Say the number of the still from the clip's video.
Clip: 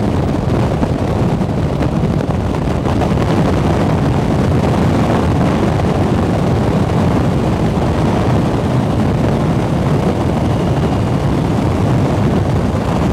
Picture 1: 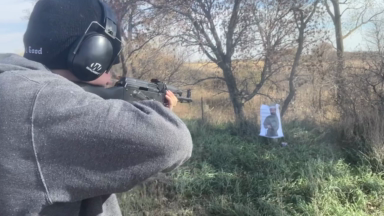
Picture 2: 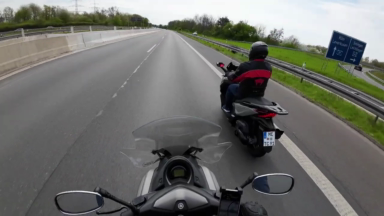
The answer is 2